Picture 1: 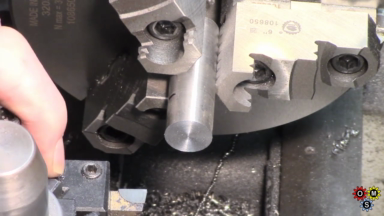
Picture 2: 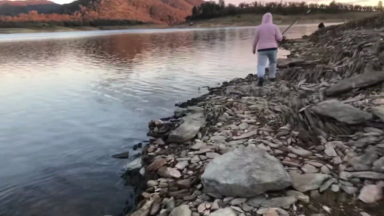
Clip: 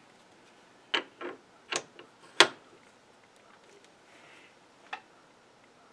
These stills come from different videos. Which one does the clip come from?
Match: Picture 1